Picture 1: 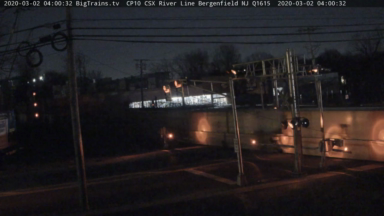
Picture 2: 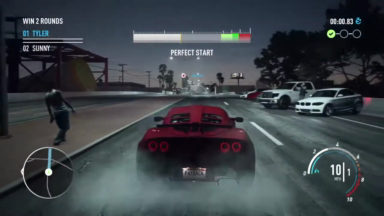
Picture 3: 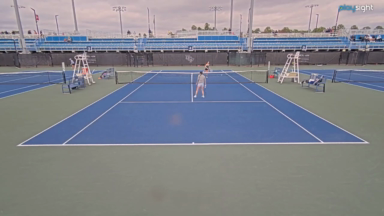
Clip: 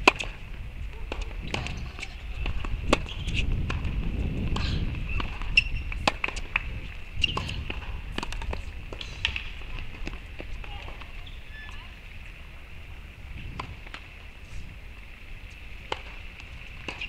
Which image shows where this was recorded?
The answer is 3